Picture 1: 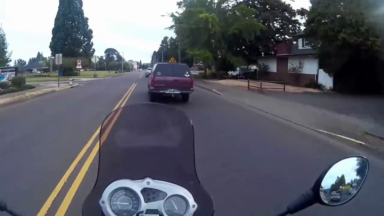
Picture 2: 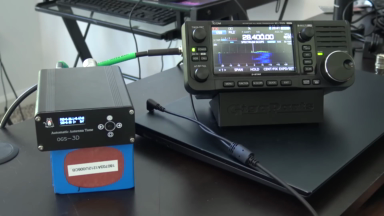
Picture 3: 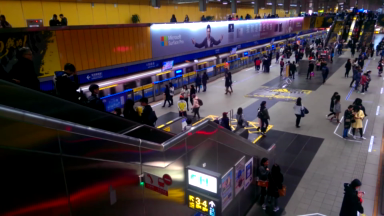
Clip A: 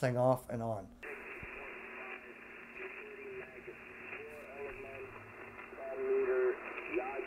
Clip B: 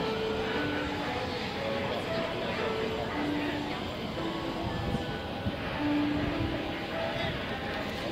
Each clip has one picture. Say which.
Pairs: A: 2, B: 3